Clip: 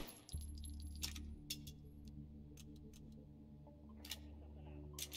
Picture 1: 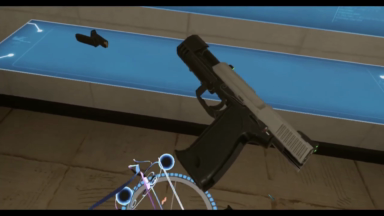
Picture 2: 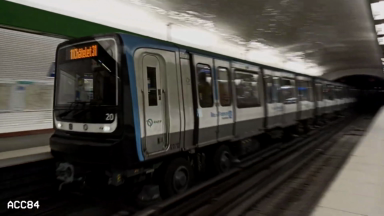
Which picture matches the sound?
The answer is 1